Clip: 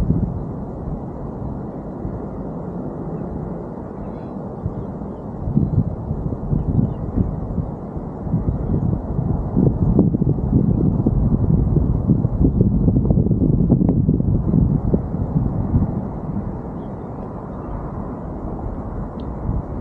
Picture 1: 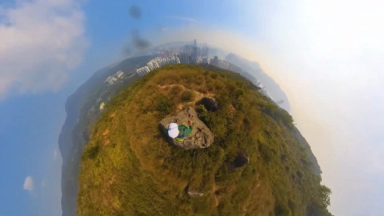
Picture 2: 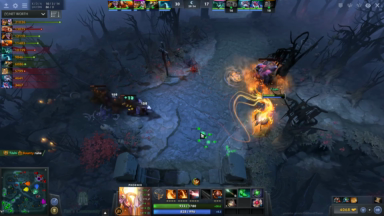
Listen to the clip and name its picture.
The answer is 1